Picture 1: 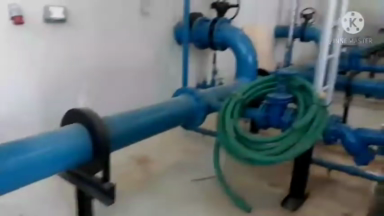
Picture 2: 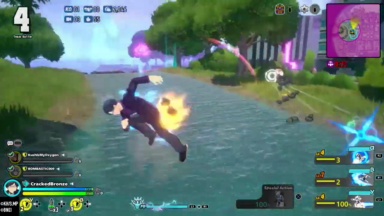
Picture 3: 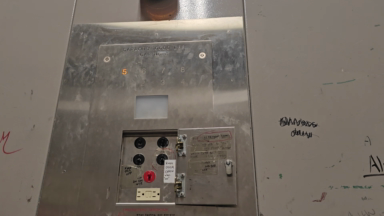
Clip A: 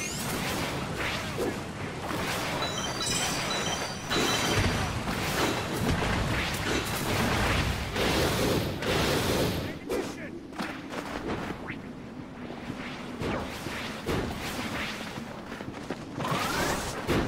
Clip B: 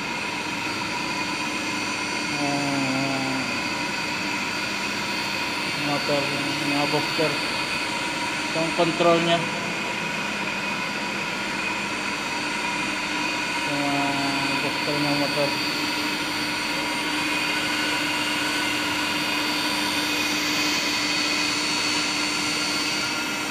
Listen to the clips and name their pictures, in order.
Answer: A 2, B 1